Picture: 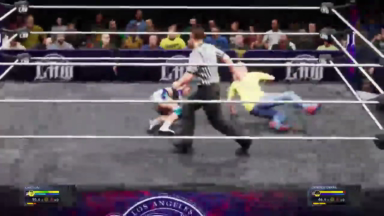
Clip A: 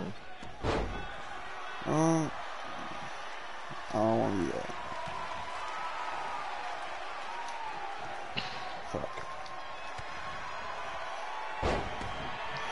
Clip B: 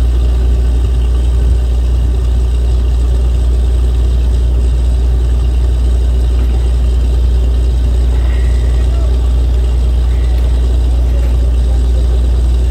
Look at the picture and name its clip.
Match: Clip A